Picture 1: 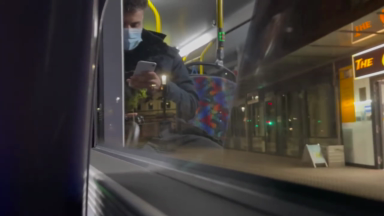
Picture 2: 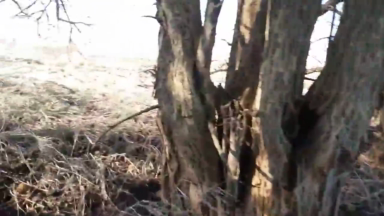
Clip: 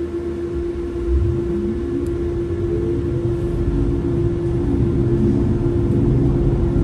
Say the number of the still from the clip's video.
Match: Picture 1